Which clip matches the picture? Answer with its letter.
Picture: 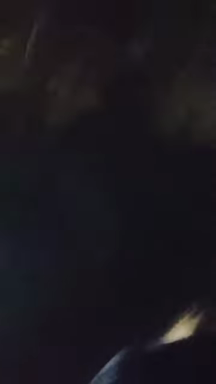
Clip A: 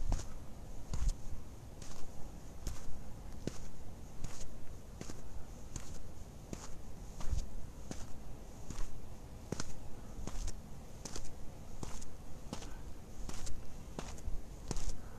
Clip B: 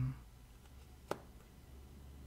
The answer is A